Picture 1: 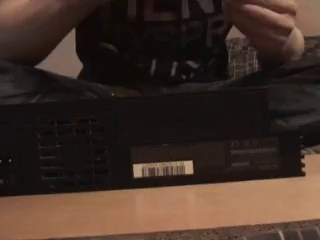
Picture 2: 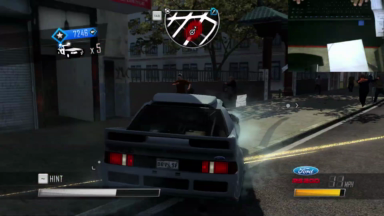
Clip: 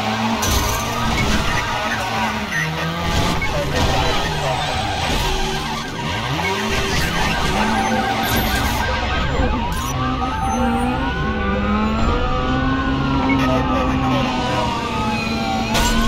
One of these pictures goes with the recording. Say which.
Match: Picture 2